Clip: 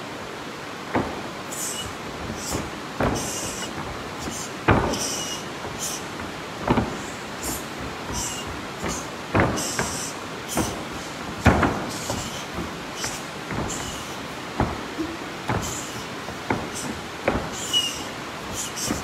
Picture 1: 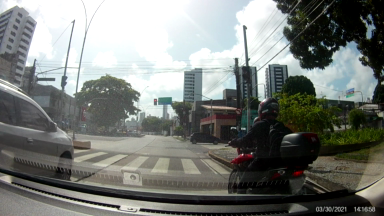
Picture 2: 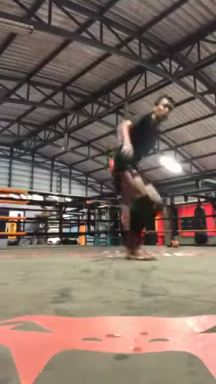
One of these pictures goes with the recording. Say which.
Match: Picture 2